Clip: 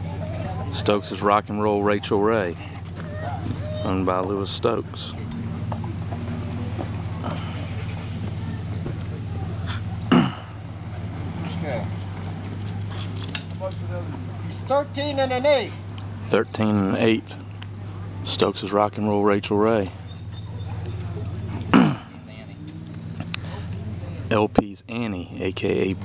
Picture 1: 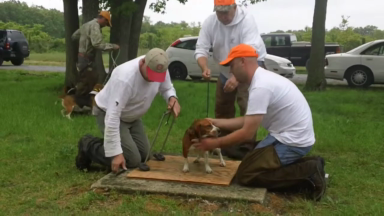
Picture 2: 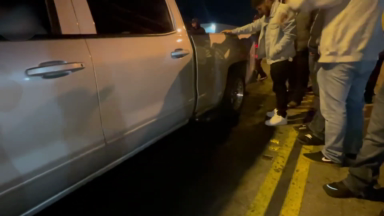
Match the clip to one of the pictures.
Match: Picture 1